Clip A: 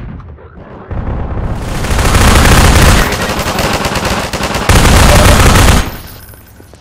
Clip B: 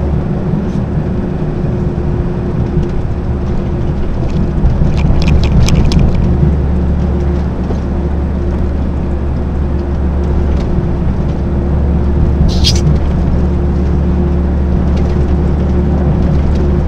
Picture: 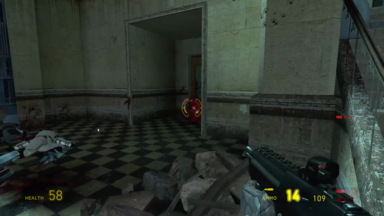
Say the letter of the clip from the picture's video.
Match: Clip A